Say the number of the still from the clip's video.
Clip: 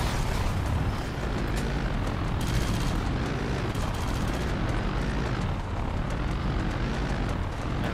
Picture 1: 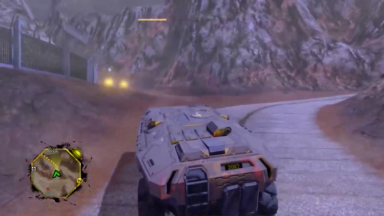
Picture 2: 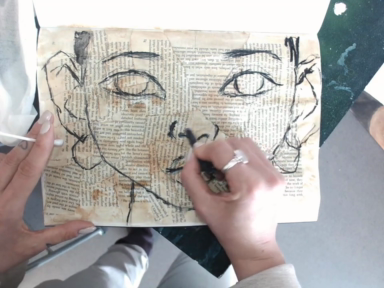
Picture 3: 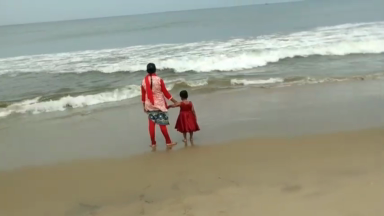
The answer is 1